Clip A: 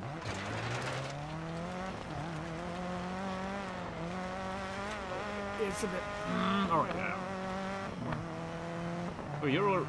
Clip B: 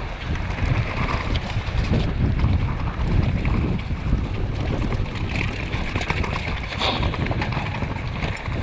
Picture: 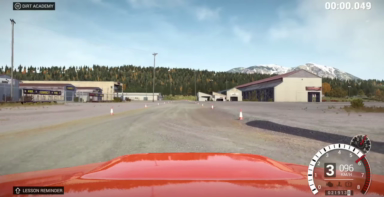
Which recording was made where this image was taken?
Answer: A